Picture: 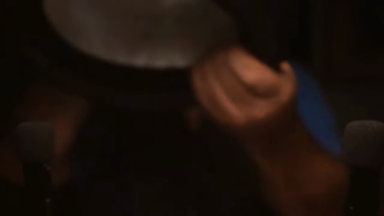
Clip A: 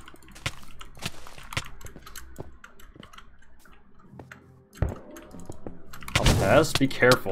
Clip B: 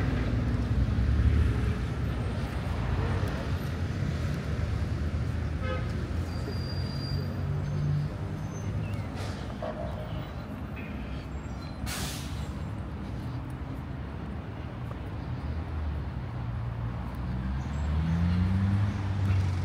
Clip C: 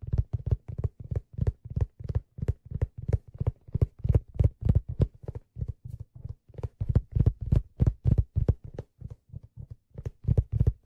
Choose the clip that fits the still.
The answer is C